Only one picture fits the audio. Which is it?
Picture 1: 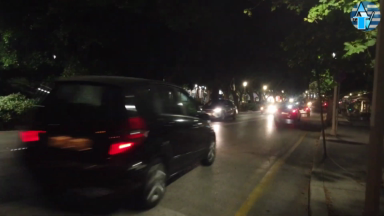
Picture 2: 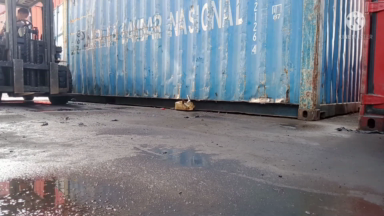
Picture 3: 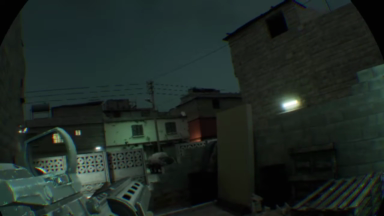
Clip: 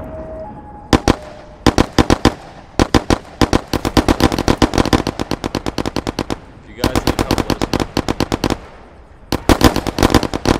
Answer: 3